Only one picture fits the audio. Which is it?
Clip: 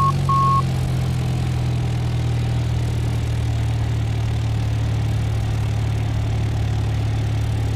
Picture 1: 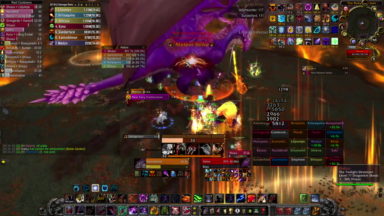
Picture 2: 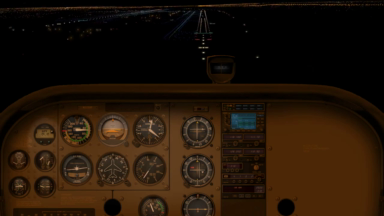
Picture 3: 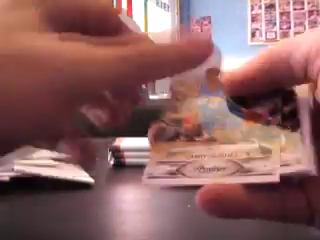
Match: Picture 2